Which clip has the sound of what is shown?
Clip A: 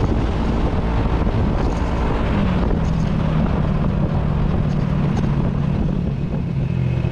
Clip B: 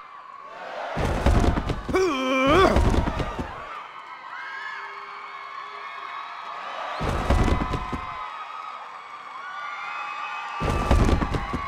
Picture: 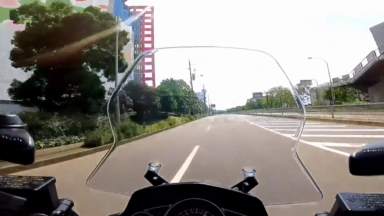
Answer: A